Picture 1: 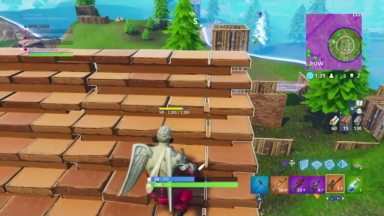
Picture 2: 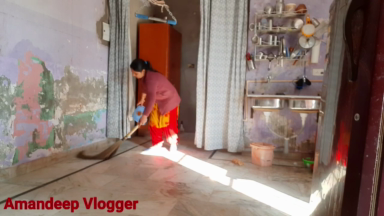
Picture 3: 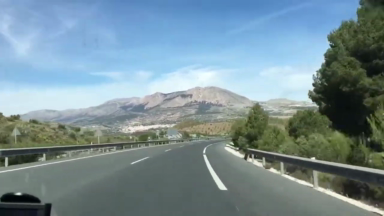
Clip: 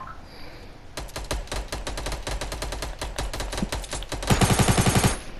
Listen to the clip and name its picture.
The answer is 1